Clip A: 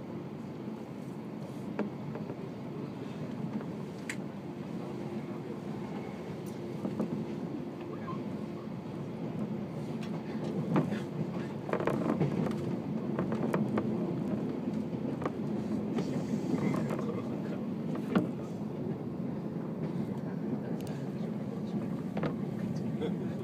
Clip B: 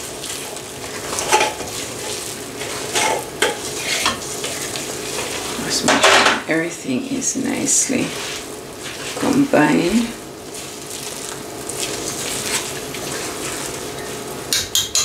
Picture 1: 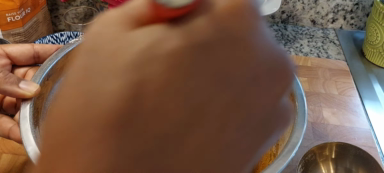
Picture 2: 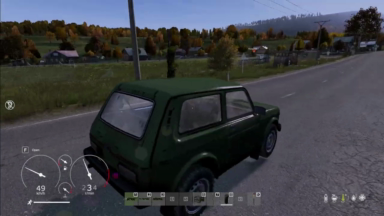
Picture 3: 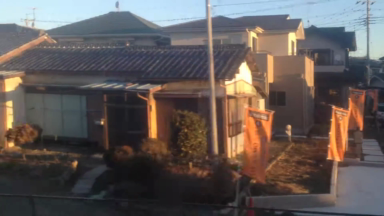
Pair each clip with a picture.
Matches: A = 3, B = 1